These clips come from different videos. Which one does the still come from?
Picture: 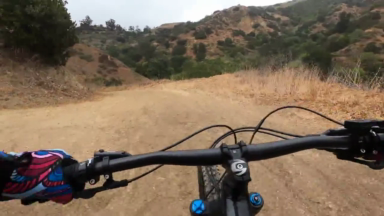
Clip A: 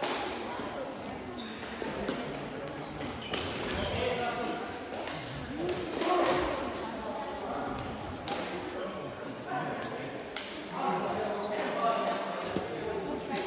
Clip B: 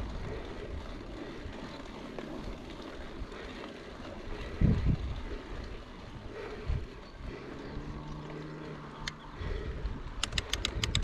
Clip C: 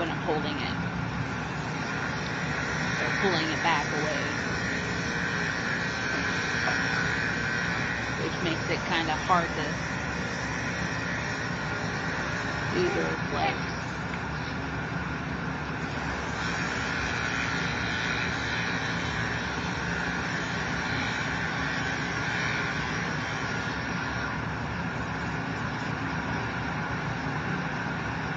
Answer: B